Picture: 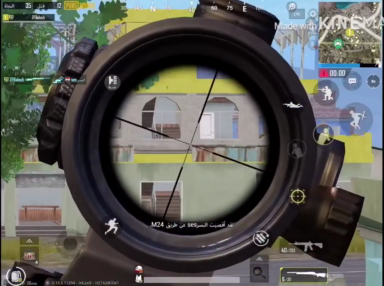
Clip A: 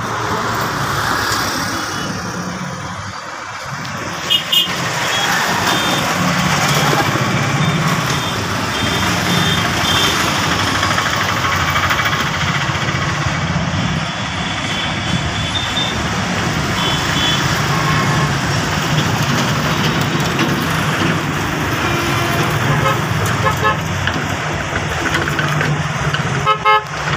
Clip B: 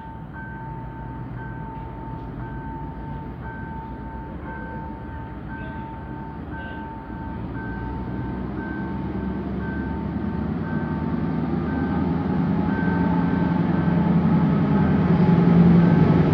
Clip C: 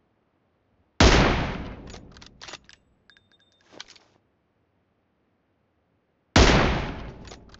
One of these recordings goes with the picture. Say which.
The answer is C